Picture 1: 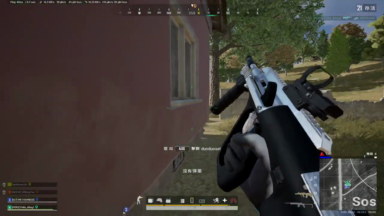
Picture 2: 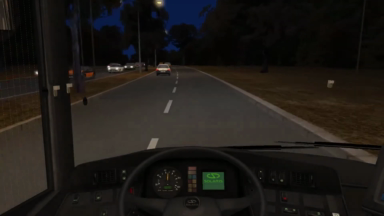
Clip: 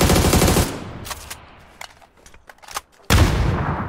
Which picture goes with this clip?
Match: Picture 1